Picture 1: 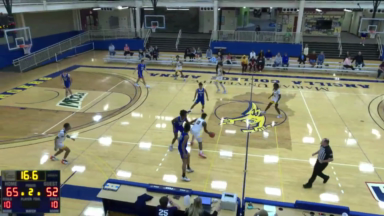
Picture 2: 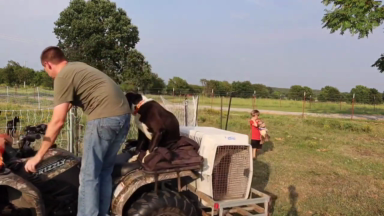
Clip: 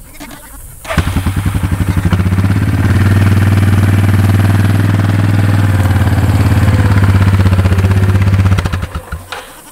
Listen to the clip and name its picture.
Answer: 2